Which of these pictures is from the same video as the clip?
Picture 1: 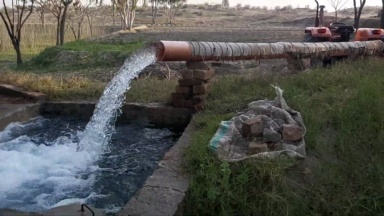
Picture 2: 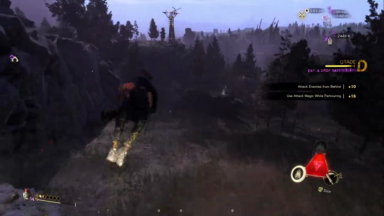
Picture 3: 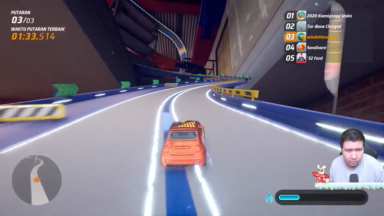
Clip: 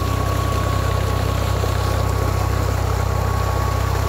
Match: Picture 1